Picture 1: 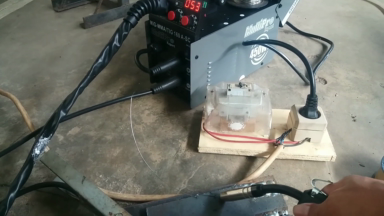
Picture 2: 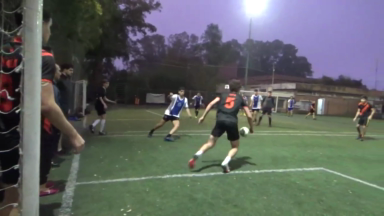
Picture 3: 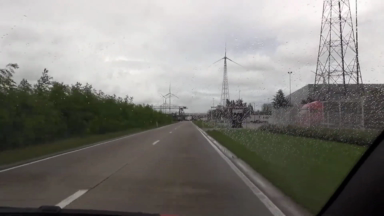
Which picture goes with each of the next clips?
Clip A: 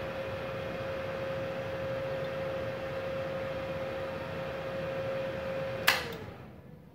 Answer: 1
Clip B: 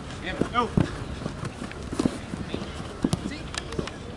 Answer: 2